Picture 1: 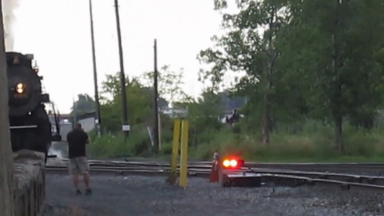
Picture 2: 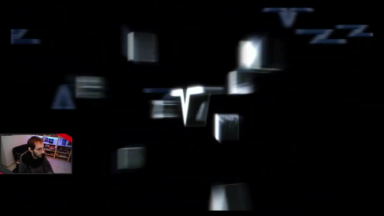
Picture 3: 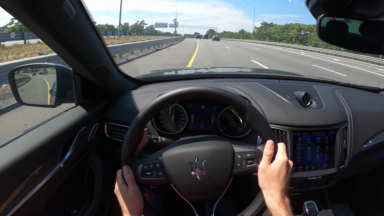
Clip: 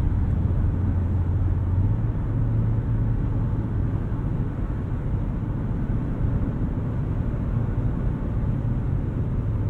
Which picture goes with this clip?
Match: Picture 3